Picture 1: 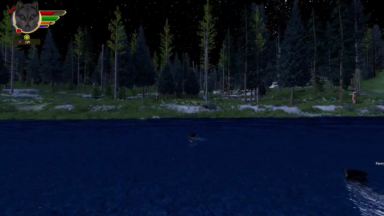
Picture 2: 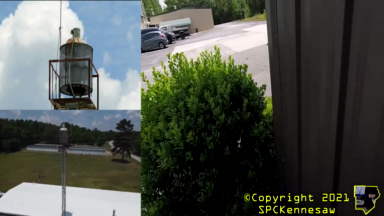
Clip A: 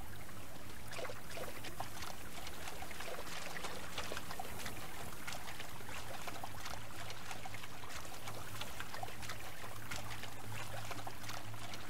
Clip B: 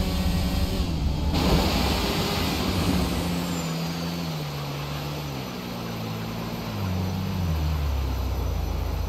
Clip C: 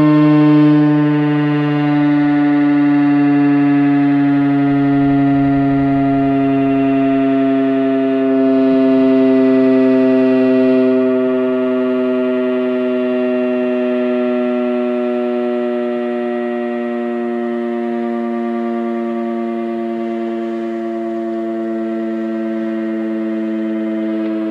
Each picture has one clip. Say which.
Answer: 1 A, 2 C